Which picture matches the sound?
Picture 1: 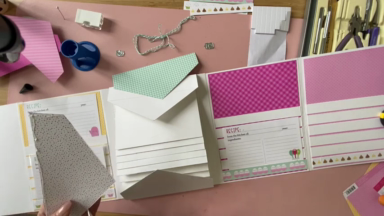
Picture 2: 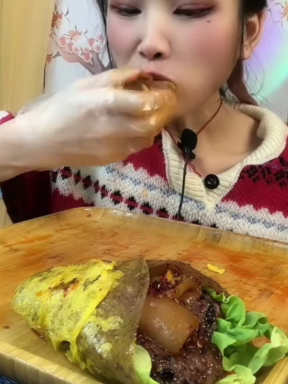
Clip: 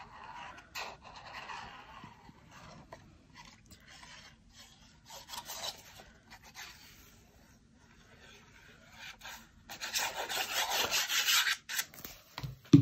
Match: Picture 1